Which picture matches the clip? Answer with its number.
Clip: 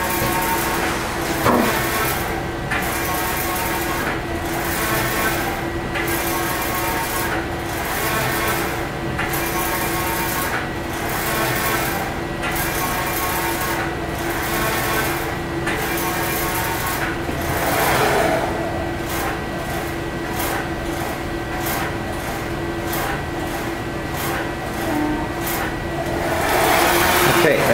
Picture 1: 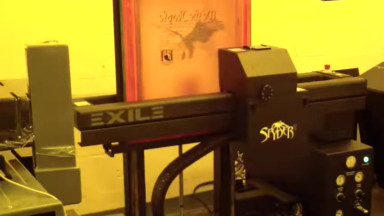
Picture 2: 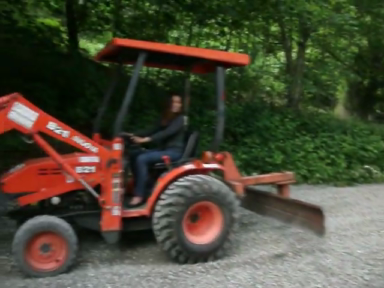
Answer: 1